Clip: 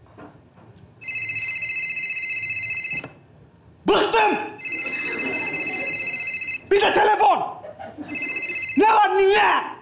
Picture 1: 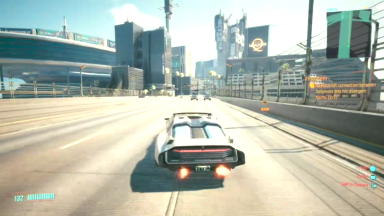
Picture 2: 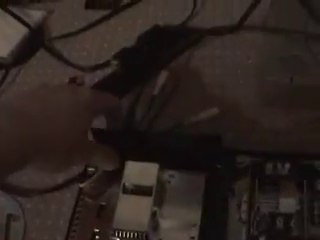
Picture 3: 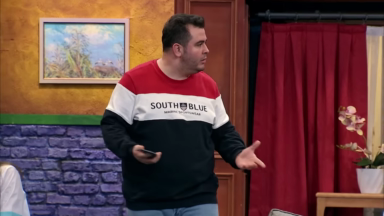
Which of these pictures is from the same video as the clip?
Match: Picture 3